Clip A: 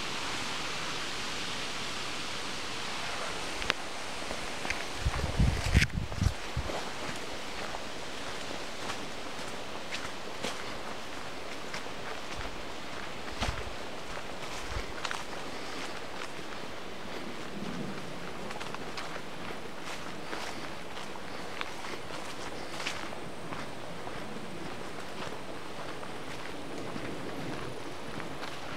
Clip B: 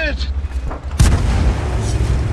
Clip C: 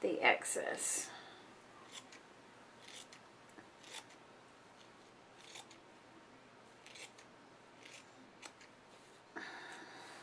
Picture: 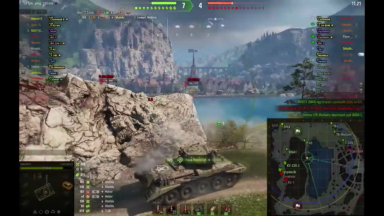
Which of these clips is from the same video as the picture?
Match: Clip B